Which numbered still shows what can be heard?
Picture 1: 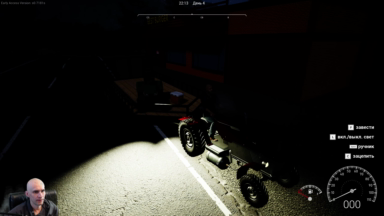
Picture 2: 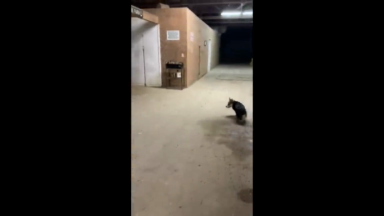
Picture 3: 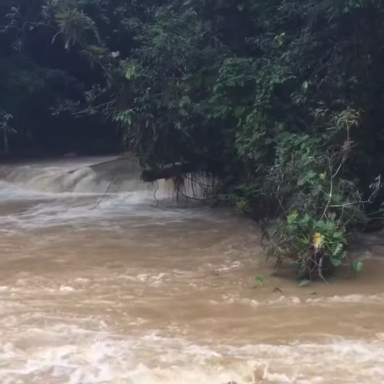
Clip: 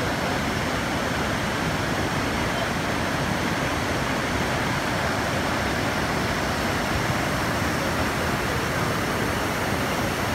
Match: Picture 3